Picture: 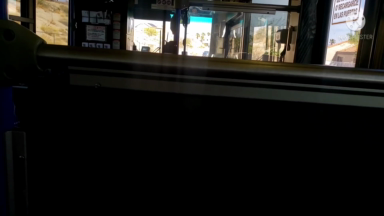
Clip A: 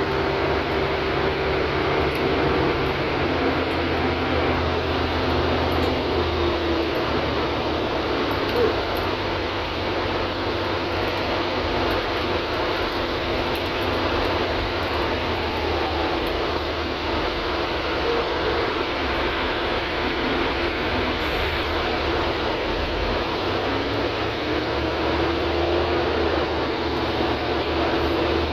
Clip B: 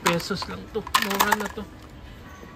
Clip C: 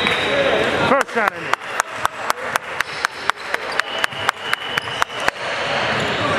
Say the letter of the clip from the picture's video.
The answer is A